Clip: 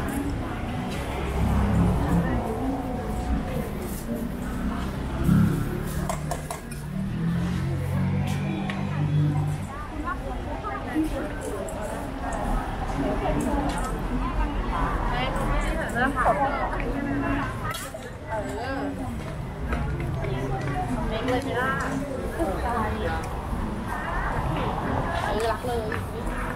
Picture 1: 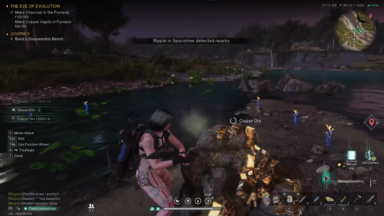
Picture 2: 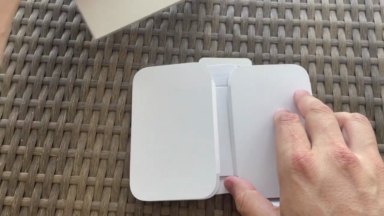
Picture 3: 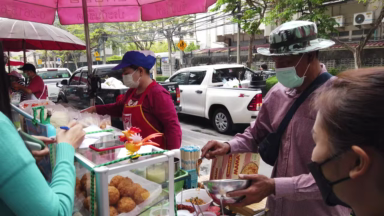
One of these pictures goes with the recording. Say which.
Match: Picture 3